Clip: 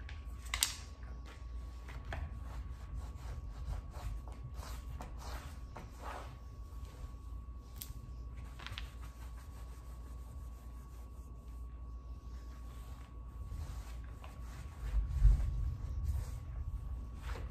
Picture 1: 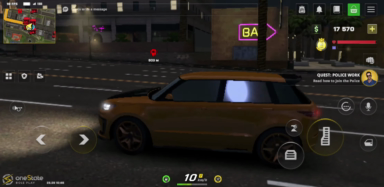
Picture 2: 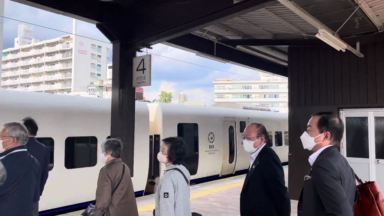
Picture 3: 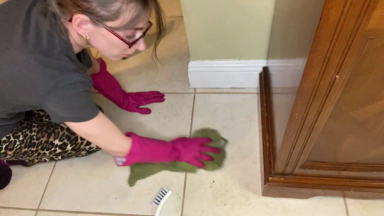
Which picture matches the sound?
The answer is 3